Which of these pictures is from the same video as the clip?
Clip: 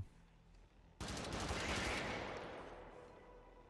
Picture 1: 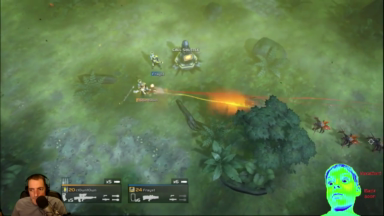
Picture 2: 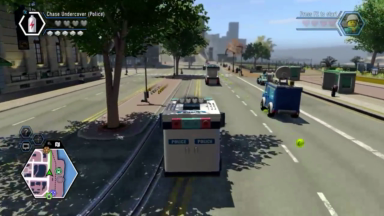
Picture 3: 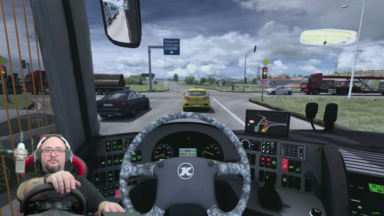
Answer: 1